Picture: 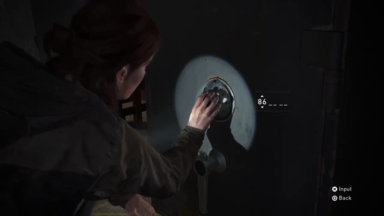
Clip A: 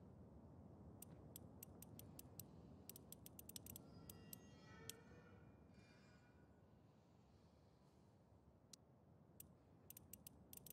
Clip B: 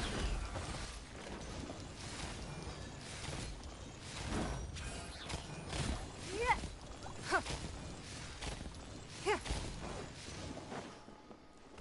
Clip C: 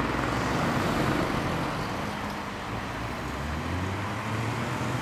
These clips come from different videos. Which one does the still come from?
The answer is A